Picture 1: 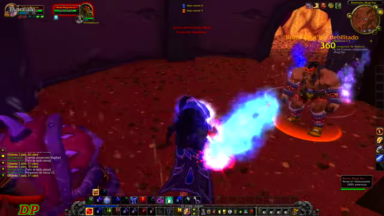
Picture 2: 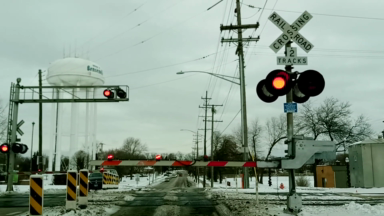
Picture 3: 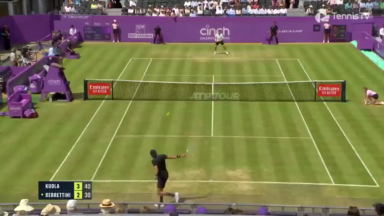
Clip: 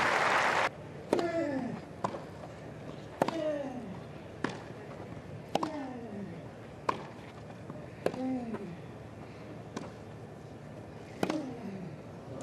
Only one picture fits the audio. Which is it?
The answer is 3